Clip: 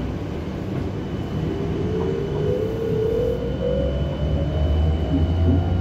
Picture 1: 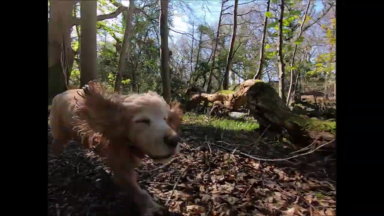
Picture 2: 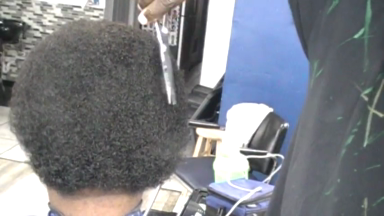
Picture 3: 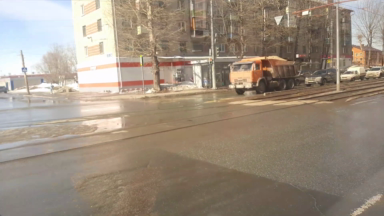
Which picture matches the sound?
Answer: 3